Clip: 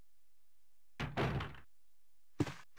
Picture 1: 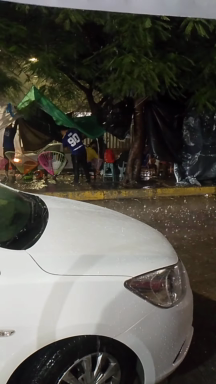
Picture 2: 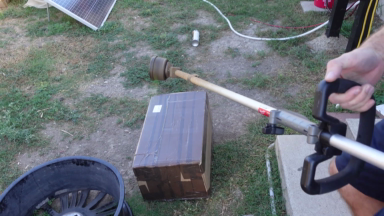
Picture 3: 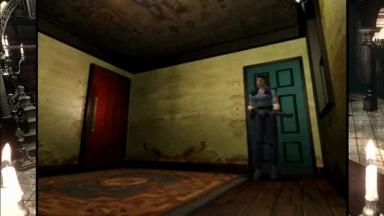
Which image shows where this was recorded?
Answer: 3